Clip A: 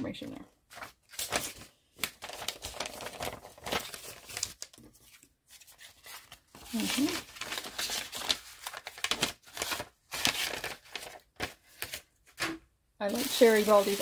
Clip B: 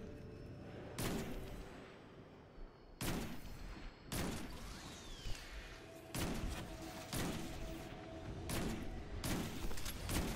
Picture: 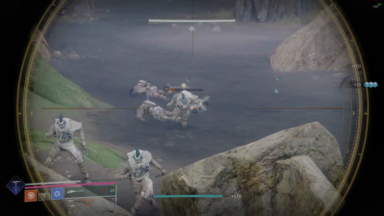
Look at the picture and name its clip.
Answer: B